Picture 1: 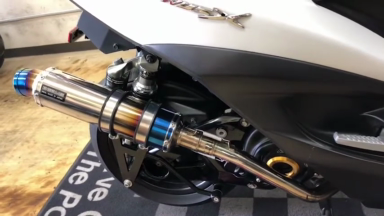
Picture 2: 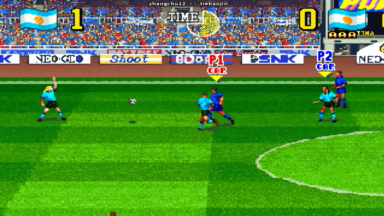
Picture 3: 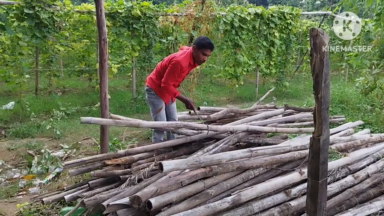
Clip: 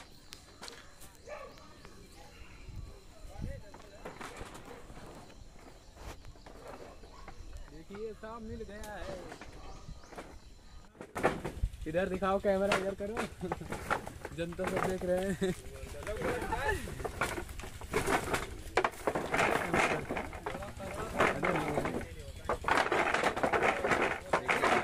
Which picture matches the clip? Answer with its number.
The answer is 3